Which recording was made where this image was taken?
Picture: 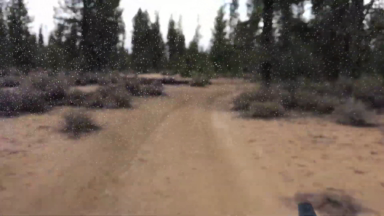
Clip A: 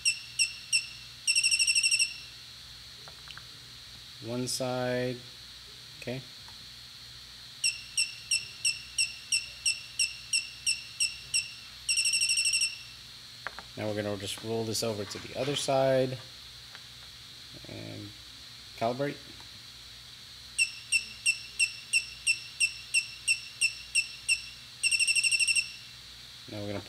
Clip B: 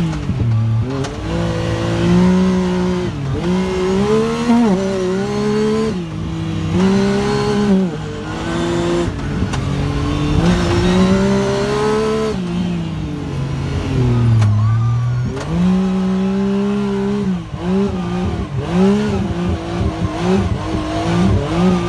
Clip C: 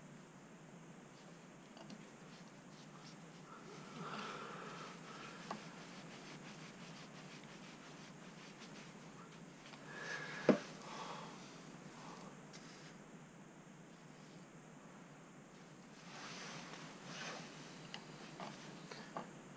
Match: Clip B